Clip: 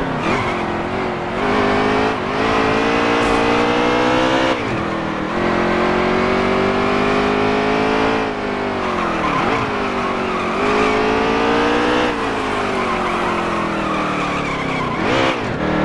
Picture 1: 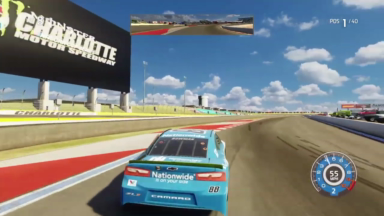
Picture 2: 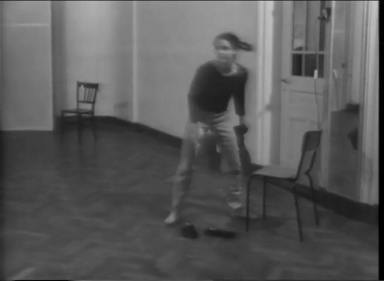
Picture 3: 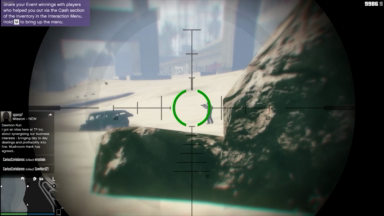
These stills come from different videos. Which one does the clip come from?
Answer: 1